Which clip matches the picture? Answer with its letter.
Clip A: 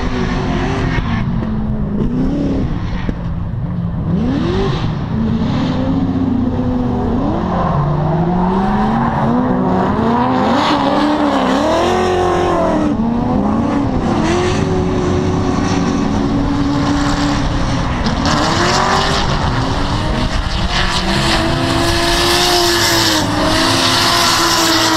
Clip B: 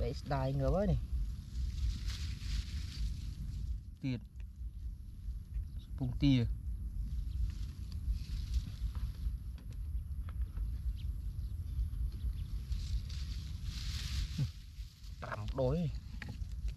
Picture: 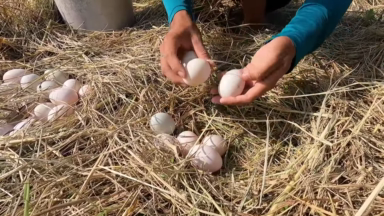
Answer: B